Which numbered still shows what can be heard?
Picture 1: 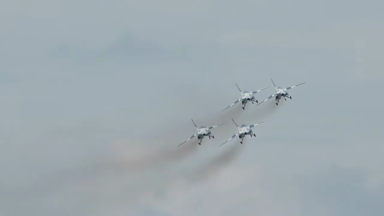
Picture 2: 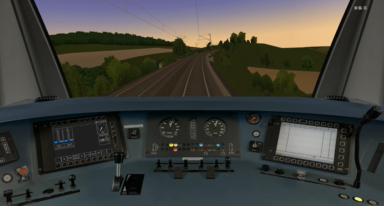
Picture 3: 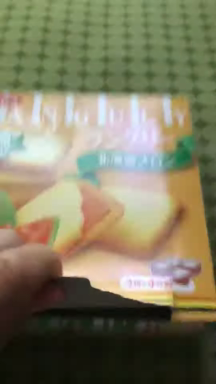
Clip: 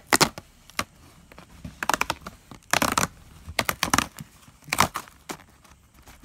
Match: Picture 3